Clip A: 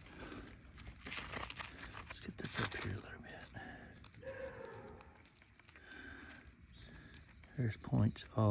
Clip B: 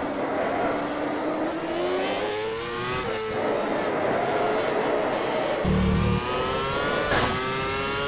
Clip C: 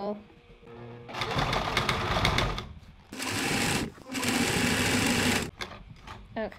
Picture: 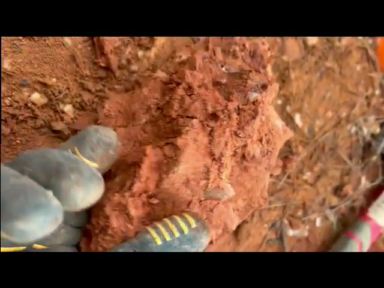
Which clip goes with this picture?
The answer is A